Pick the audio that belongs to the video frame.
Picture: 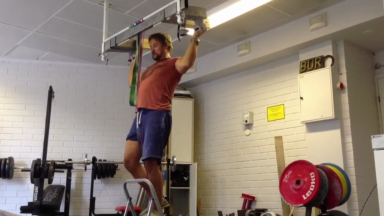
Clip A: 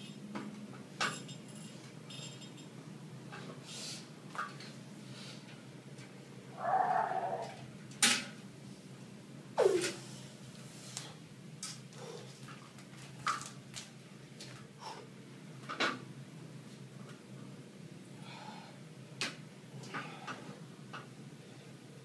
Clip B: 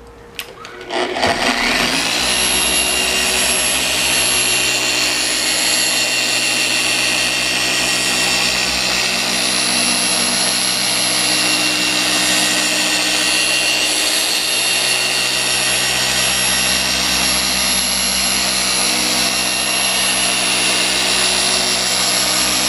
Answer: A